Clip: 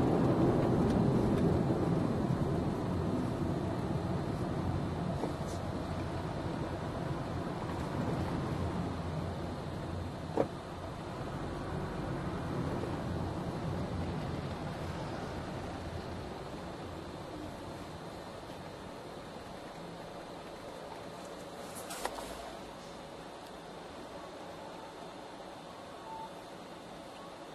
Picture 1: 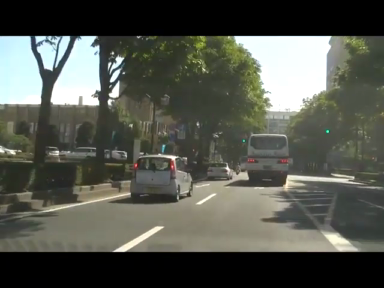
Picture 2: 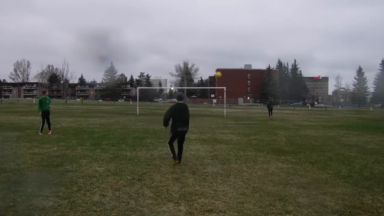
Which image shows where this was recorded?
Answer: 1